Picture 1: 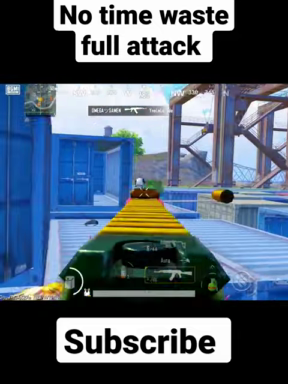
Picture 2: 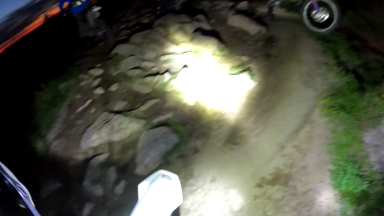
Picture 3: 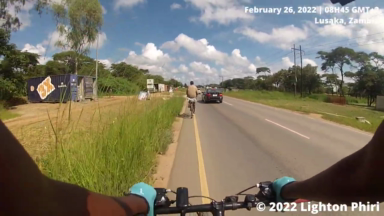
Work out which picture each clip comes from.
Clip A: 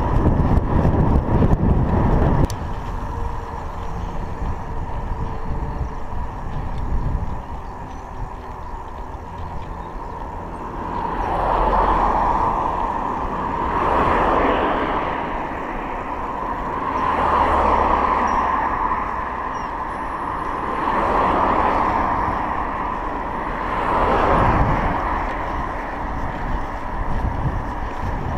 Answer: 3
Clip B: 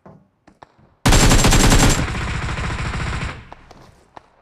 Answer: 1